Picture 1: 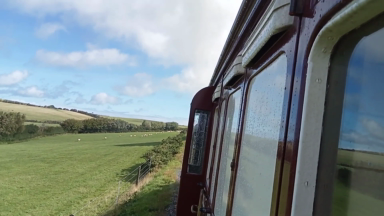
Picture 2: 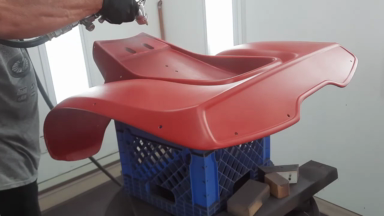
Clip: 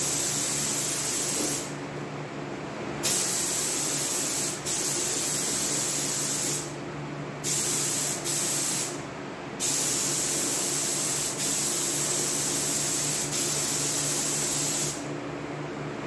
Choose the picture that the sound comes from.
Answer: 2